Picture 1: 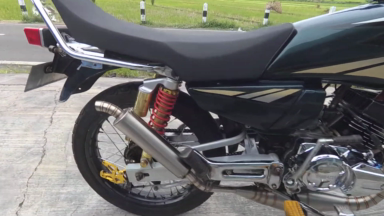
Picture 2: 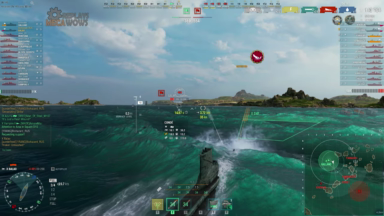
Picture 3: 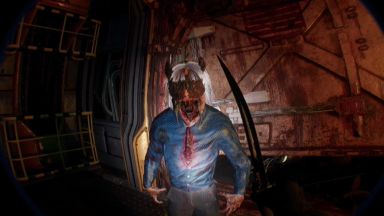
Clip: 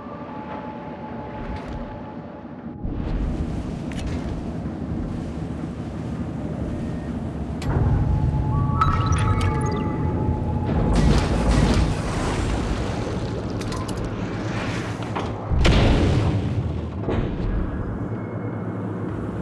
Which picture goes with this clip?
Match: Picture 2